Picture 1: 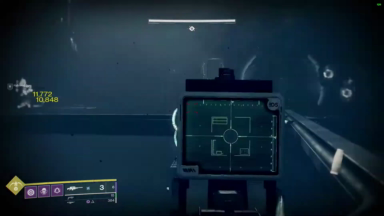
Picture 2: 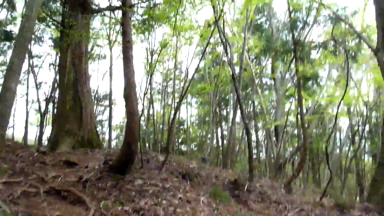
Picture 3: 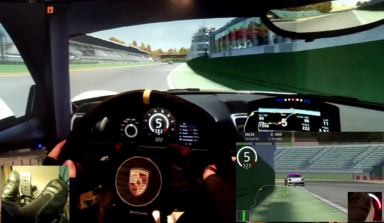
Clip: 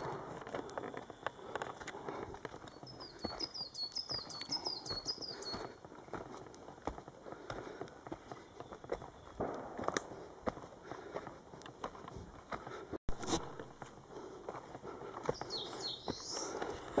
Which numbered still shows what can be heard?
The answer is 2